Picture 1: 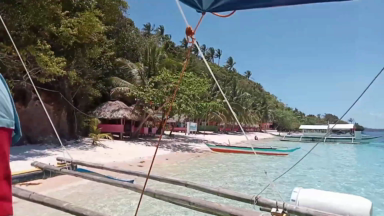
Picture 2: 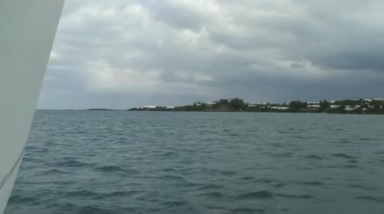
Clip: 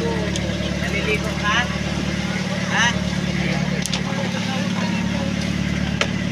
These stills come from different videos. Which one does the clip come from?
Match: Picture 1